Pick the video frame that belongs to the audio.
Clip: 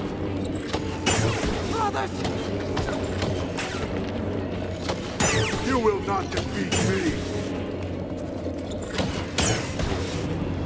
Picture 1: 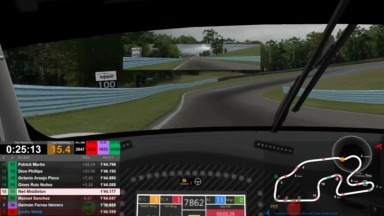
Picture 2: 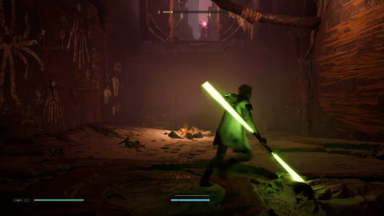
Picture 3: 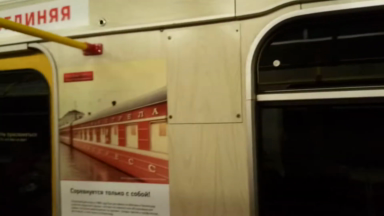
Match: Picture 2